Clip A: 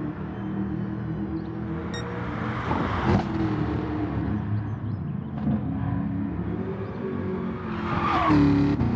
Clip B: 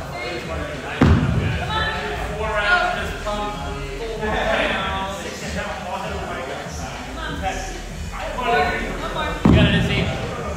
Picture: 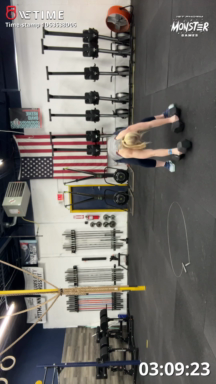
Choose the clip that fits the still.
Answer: B